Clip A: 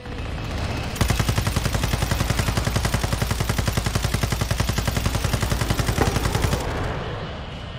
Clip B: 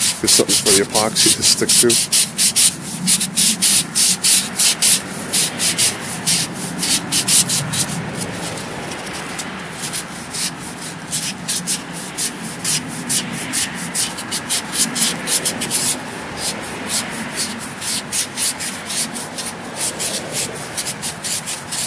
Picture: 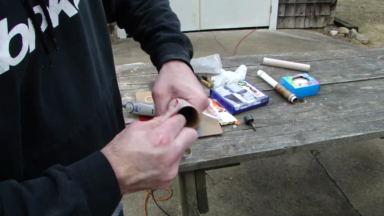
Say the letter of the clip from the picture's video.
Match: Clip B